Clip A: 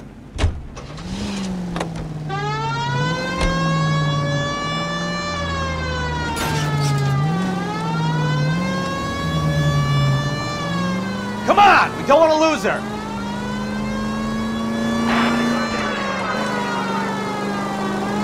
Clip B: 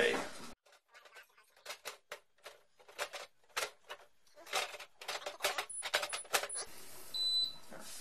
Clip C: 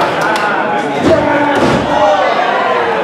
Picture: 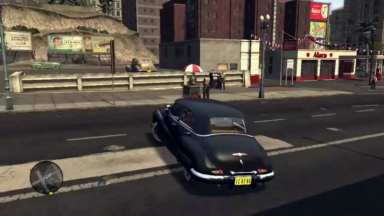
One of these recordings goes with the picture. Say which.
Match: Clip A